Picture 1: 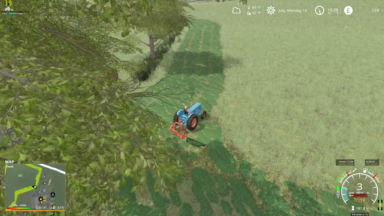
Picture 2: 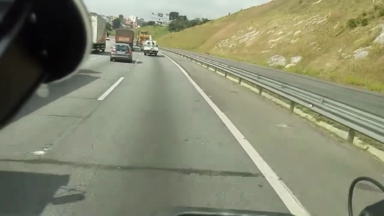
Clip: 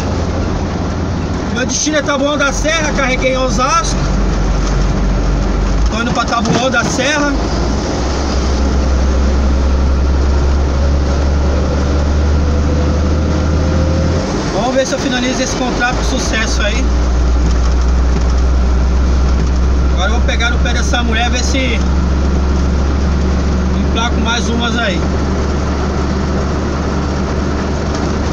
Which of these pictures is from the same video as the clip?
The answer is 2